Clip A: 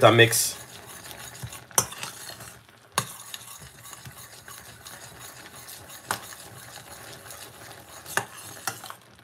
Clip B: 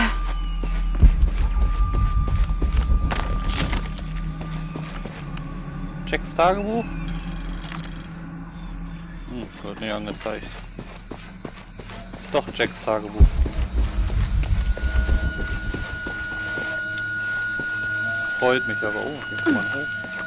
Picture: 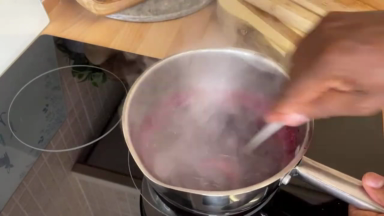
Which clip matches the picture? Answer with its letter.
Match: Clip A